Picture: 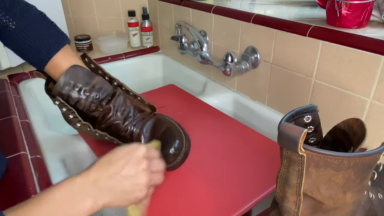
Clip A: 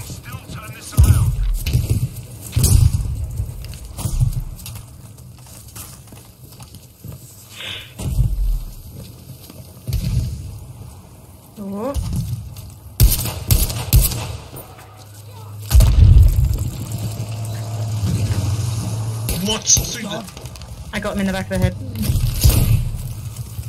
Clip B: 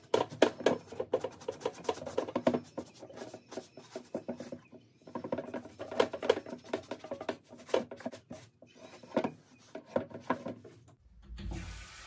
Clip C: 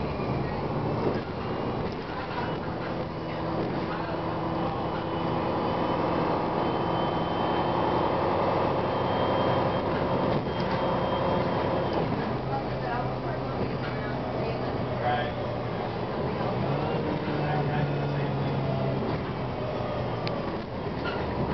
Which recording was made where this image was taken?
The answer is B